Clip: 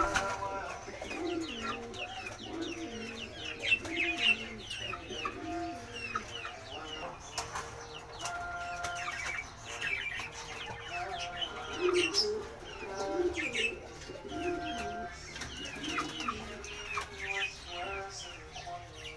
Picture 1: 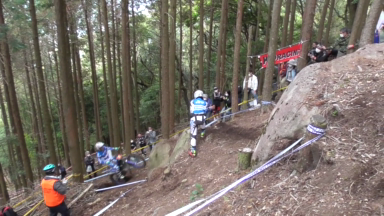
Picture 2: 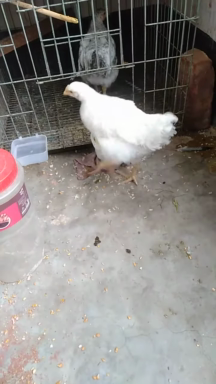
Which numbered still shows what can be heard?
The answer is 2